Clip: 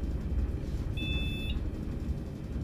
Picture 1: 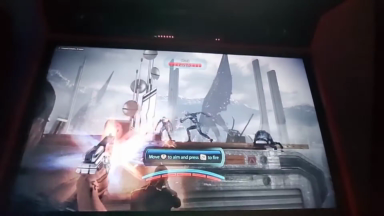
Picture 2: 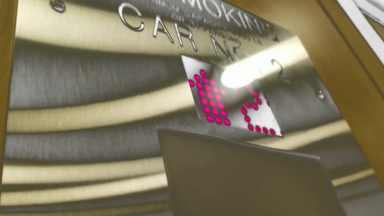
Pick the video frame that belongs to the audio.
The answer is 2